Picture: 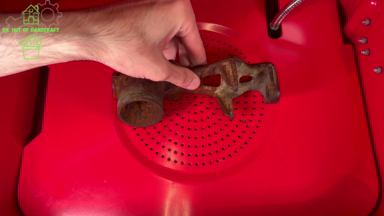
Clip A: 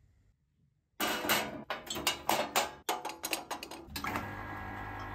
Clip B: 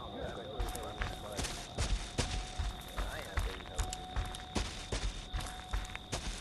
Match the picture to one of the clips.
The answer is A